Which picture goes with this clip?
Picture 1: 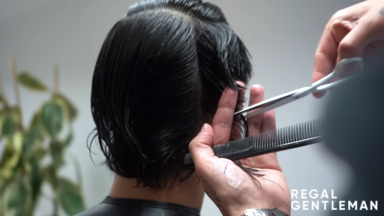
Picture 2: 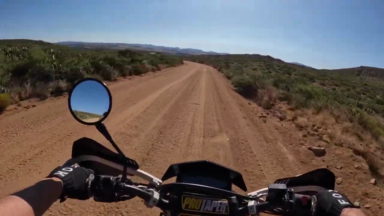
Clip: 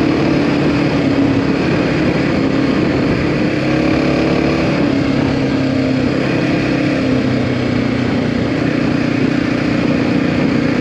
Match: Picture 2